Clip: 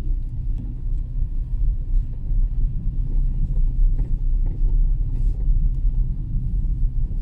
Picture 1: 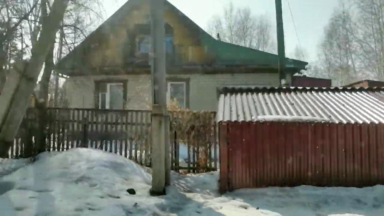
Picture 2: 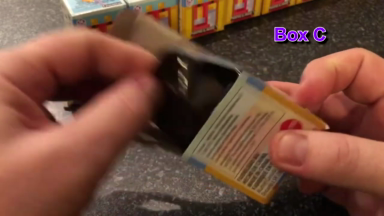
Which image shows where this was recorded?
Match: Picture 1